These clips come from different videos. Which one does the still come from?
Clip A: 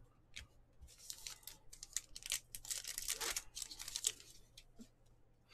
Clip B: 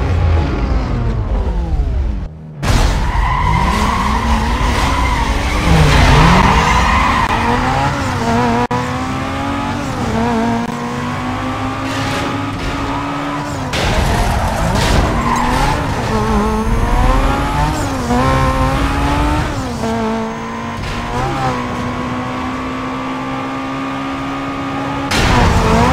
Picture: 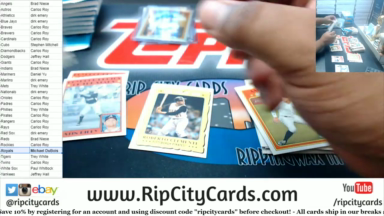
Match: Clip A